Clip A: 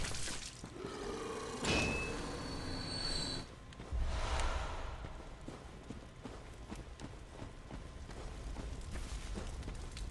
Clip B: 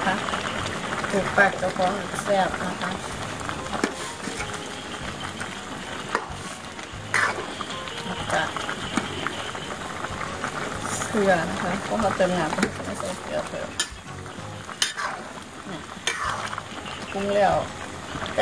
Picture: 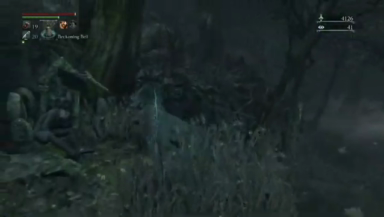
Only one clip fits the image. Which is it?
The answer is A